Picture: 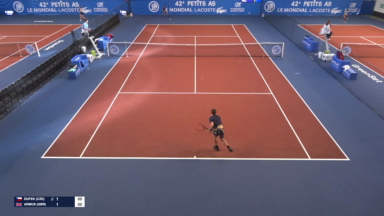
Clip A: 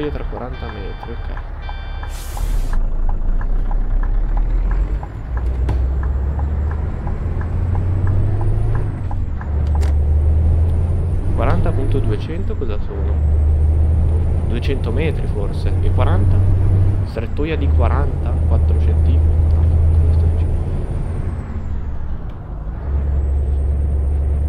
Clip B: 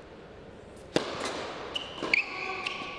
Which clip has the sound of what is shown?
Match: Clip B